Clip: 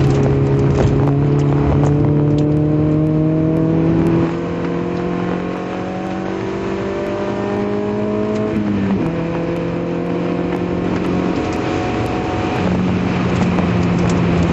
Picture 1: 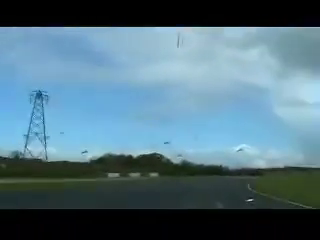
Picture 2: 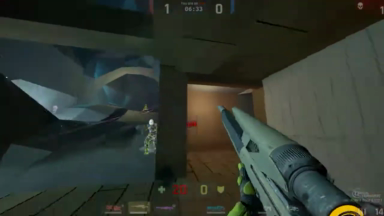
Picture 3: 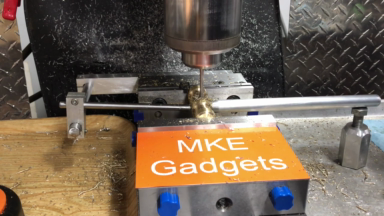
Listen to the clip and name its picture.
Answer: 1